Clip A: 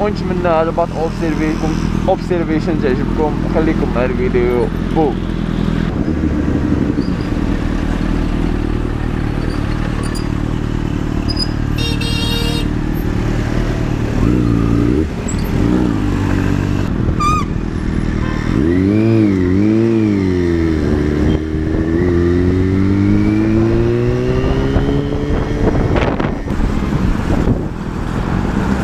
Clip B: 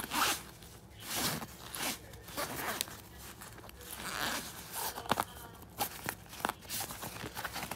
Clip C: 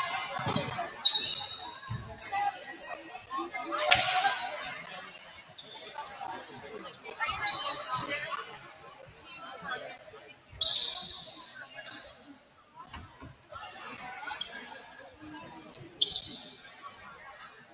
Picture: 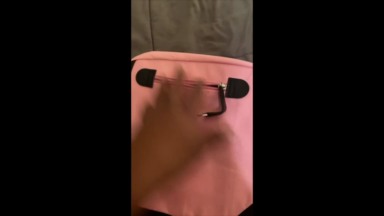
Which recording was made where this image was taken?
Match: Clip B